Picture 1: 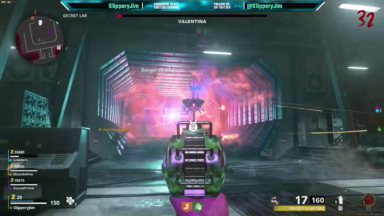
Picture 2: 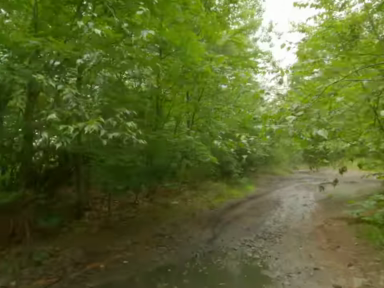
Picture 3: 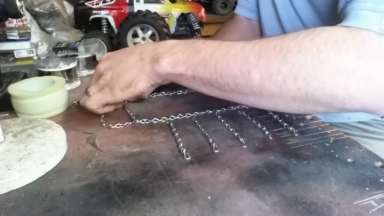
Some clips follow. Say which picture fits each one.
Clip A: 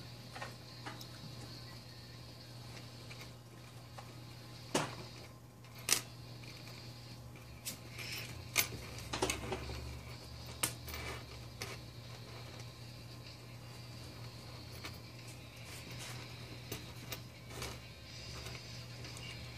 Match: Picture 3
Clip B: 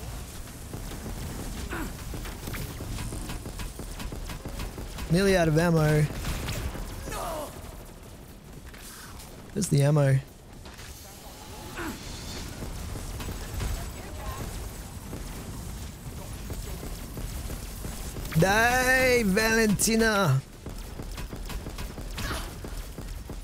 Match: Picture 1